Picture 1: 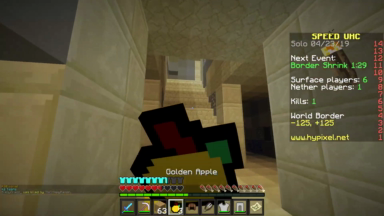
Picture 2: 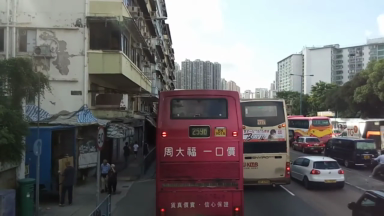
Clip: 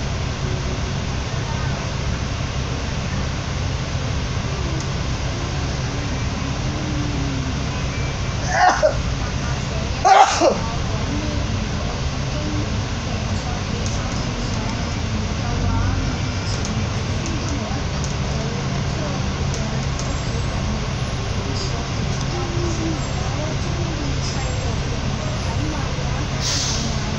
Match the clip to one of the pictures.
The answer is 2